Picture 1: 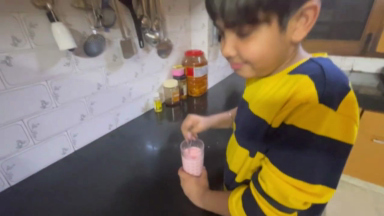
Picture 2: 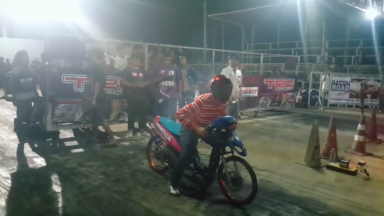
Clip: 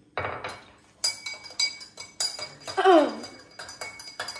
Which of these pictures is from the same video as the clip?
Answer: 1